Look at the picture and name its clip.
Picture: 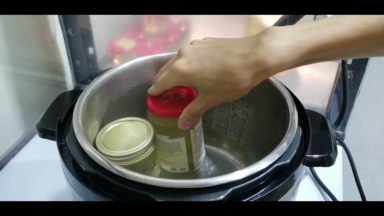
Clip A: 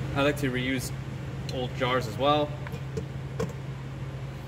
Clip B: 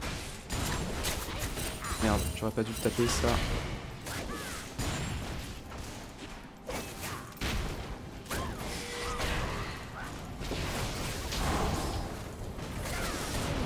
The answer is A